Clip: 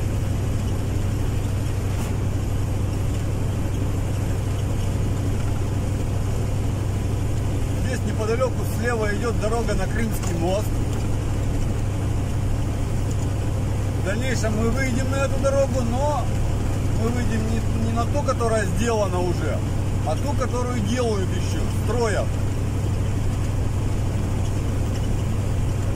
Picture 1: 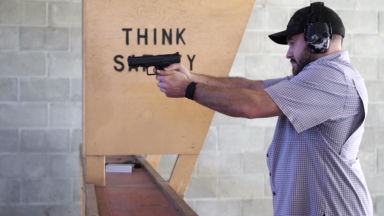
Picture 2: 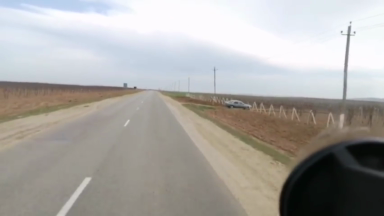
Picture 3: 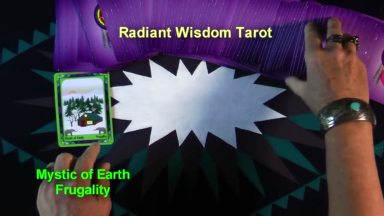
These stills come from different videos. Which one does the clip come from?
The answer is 2